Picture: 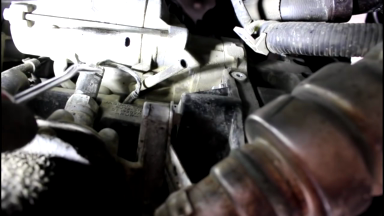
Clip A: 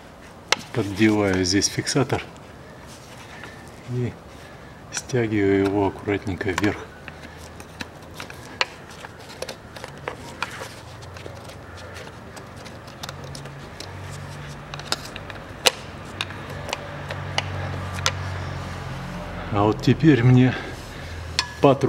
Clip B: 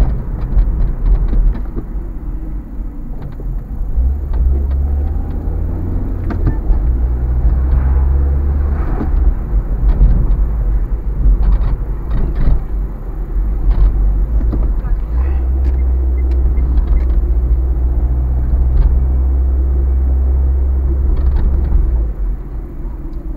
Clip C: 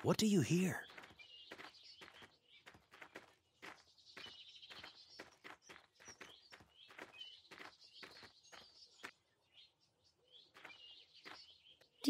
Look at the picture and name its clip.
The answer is A